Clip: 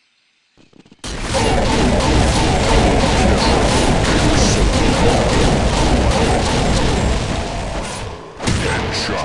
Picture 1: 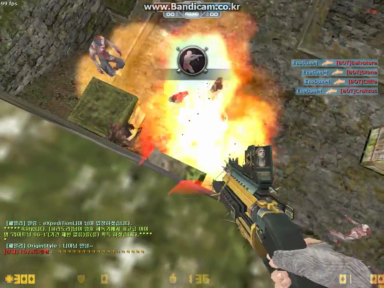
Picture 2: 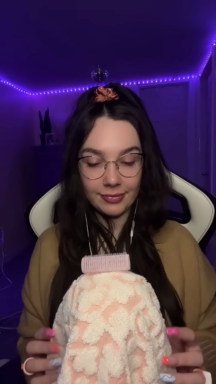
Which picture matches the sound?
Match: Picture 1